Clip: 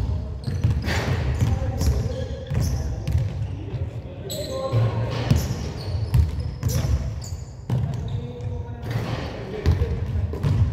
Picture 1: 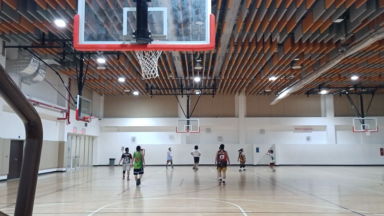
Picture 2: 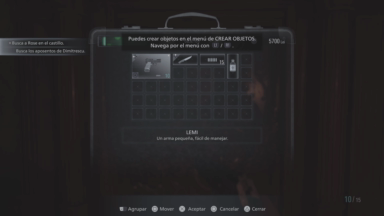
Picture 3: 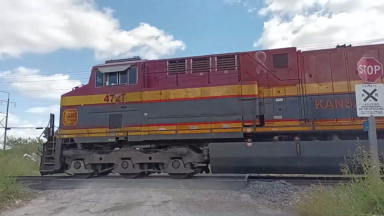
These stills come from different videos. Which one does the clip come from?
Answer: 1